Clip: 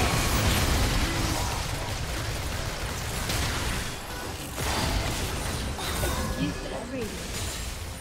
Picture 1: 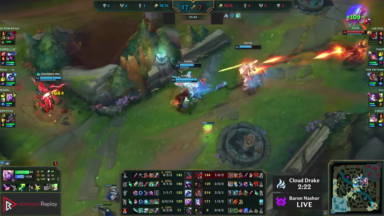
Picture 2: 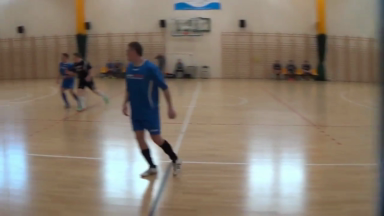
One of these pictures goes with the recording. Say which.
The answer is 1